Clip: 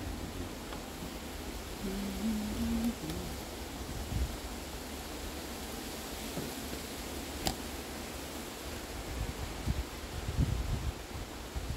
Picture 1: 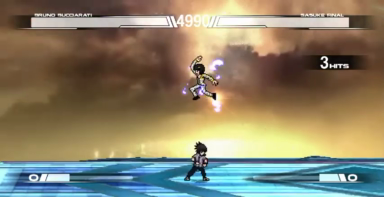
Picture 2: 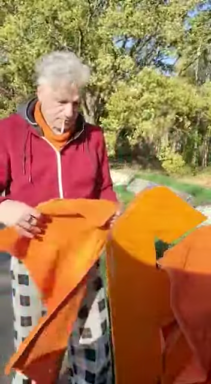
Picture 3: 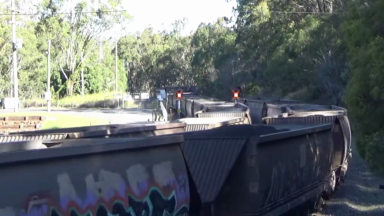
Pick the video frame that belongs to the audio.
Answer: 2